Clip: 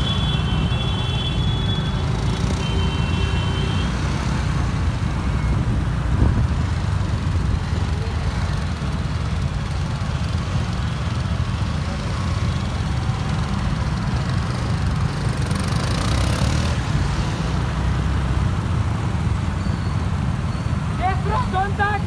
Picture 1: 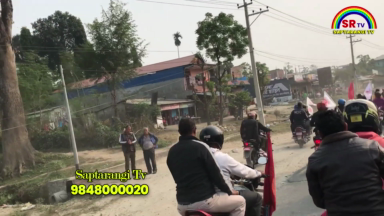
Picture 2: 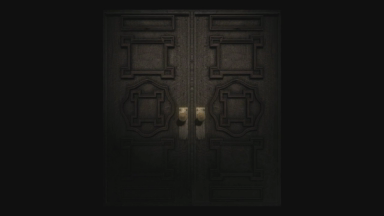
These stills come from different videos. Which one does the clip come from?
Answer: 1